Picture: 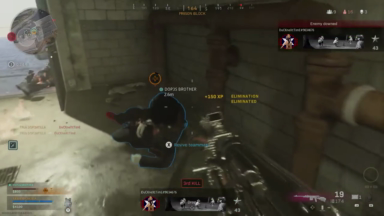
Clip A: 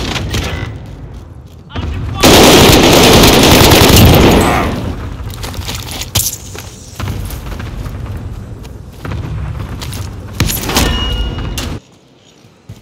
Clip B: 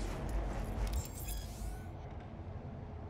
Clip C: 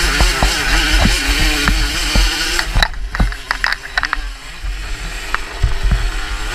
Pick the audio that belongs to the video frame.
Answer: A